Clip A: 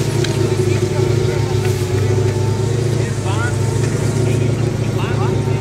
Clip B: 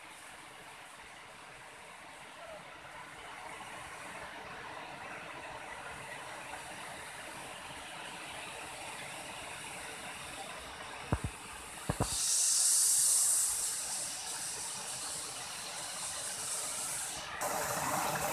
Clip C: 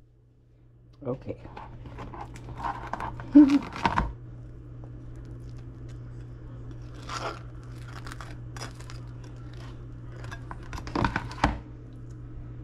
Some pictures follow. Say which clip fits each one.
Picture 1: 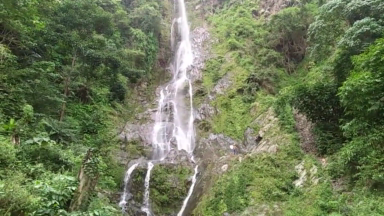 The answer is B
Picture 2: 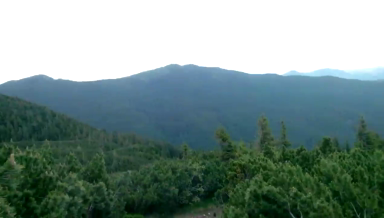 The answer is A